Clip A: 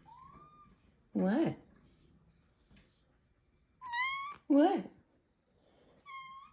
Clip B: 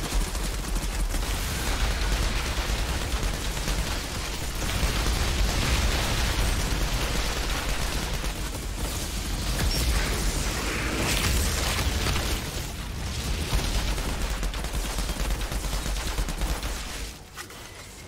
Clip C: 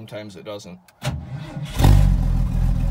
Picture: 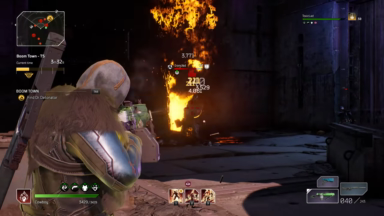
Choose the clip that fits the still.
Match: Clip B